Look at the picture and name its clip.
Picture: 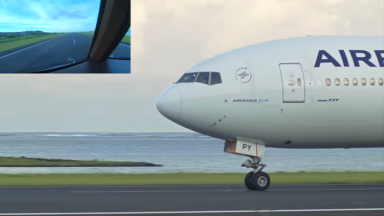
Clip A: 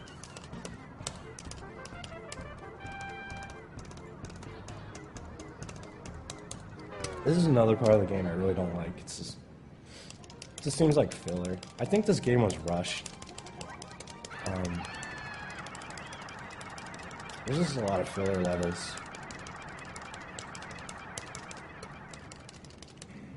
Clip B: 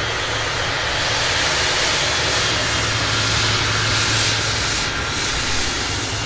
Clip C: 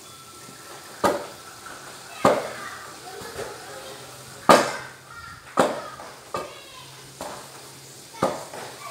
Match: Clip B